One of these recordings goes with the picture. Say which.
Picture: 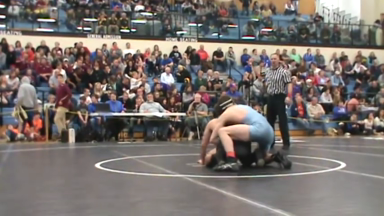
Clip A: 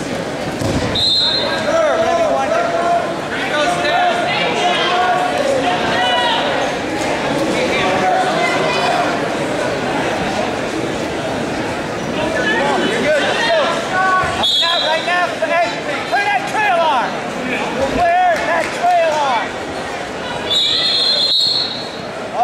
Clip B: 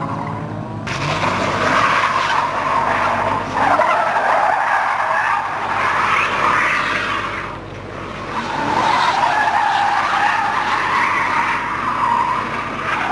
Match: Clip A